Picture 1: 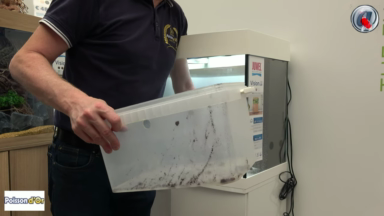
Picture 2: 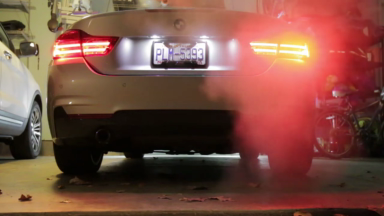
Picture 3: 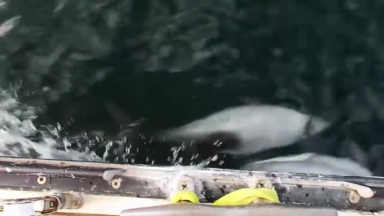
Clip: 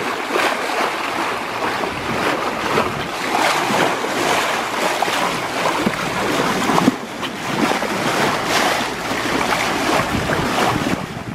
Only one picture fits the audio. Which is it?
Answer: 3